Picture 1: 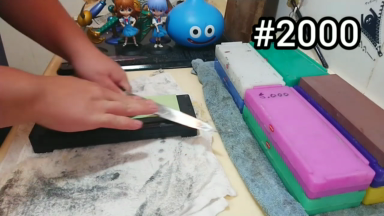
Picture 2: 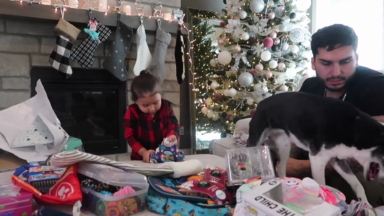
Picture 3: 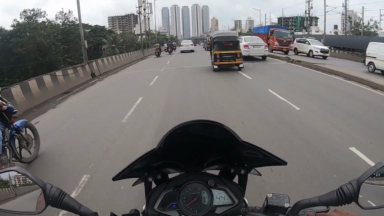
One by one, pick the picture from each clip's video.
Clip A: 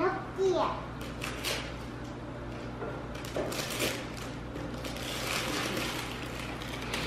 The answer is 2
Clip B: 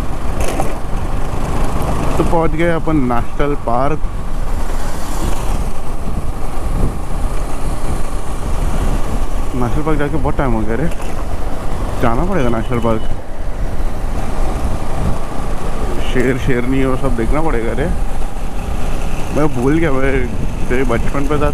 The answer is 3